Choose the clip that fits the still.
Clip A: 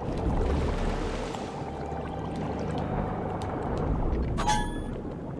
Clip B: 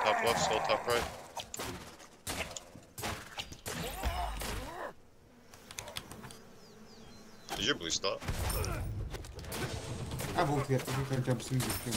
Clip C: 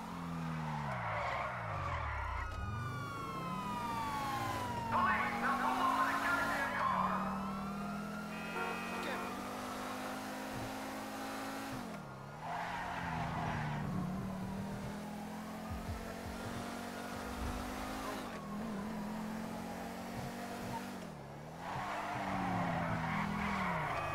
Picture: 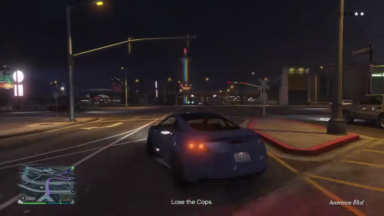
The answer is C